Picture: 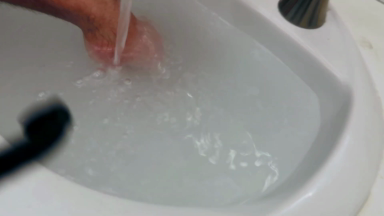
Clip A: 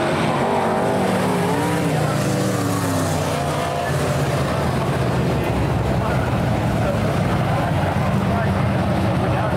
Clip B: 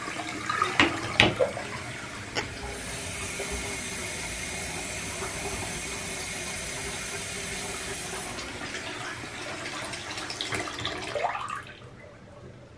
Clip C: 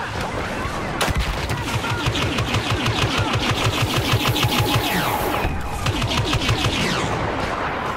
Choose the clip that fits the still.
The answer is B